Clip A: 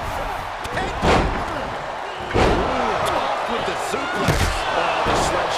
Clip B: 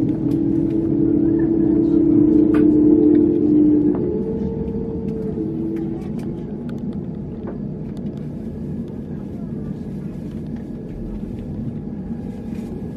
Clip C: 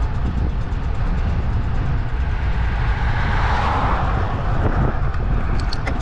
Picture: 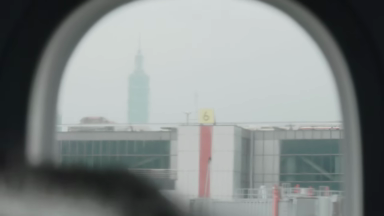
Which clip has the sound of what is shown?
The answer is B